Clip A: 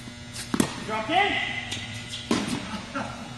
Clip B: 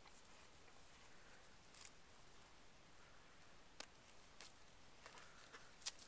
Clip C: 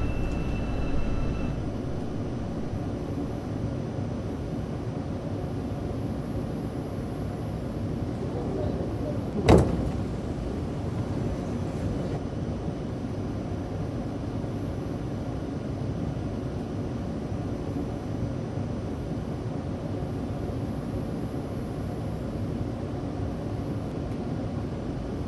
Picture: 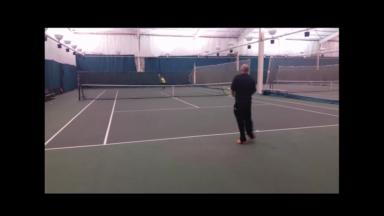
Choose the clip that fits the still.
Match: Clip A